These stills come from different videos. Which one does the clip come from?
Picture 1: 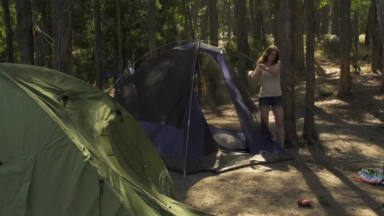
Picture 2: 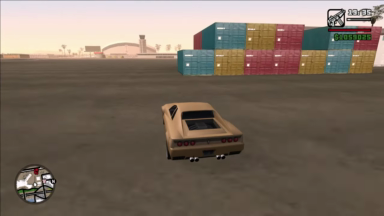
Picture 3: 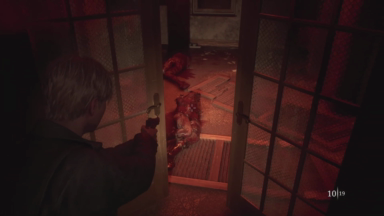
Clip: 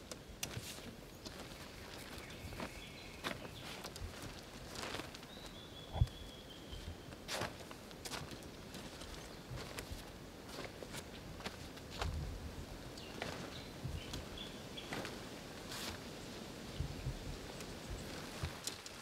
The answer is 1